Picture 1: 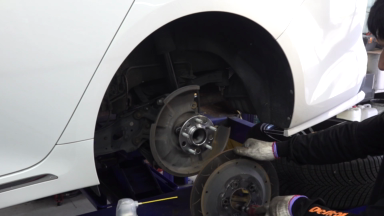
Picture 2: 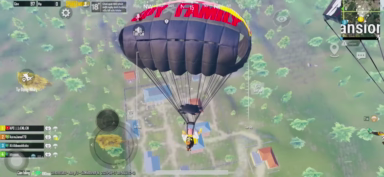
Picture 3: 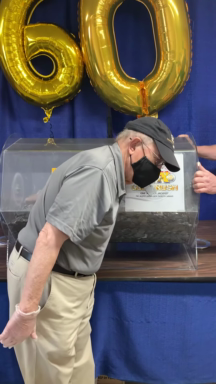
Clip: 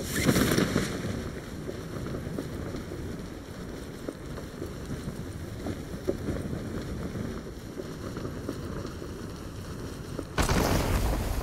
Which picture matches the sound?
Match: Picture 2